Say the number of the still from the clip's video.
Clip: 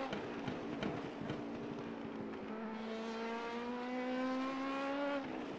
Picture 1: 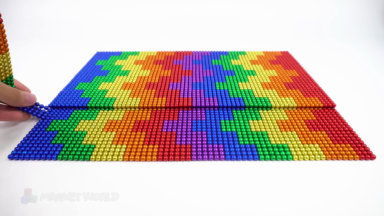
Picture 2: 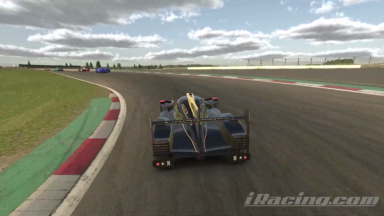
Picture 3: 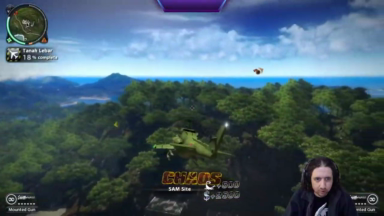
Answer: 2